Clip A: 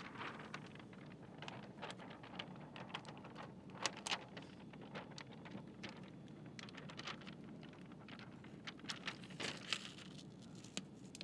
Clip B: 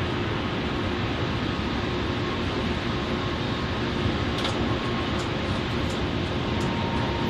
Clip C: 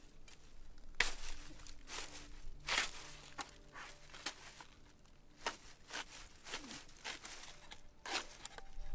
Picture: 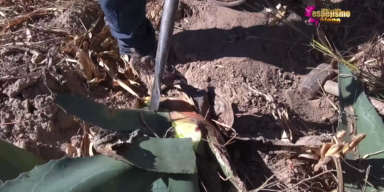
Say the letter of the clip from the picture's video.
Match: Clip C